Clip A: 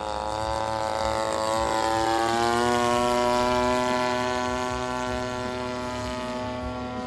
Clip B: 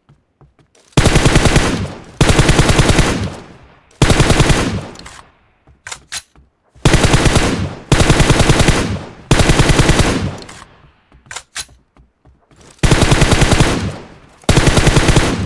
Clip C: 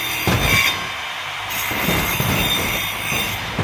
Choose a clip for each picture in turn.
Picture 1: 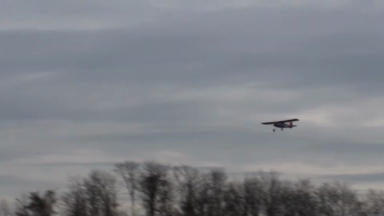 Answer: A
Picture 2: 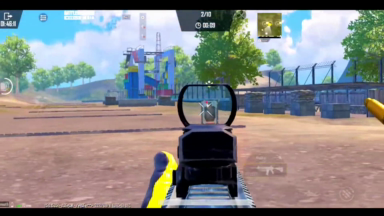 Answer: B